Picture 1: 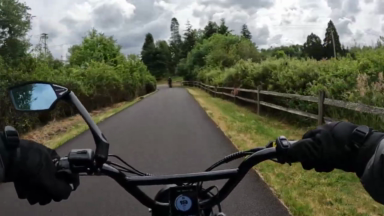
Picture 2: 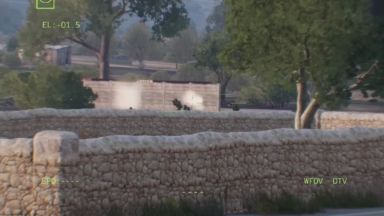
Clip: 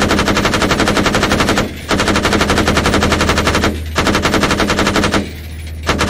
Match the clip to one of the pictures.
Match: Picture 2